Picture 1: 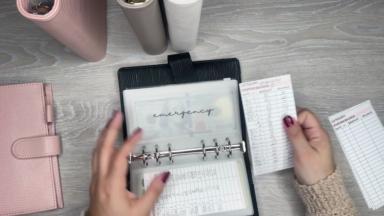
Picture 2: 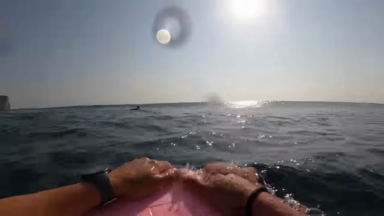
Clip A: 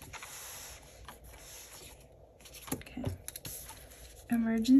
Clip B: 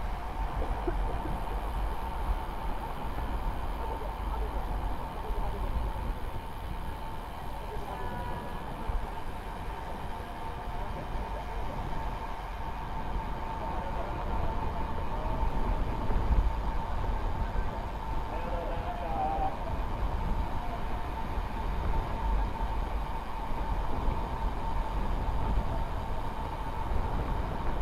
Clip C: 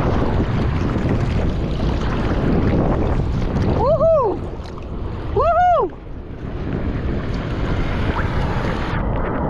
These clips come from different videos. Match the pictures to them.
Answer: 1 A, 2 C